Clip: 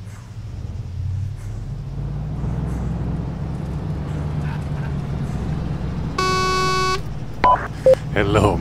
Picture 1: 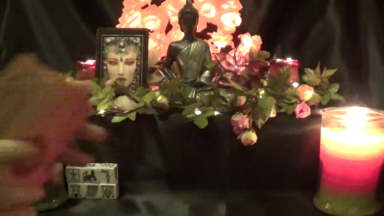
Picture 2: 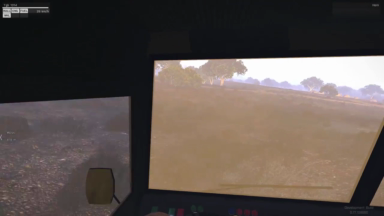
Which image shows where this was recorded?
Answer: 2